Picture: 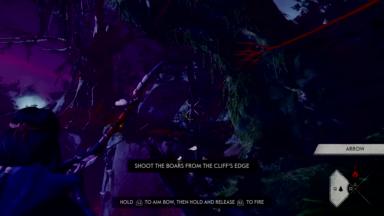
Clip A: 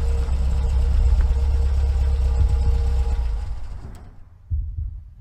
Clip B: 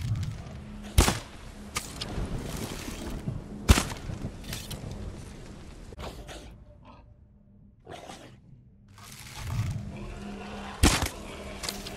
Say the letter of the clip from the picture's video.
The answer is B